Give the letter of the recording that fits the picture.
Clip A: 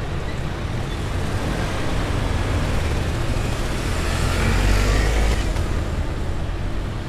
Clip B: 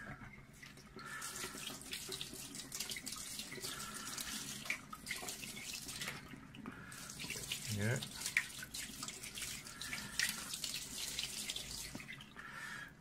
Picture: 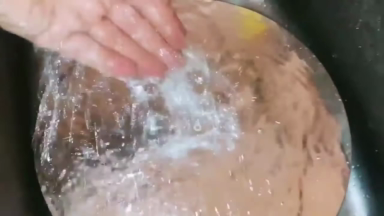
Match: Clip B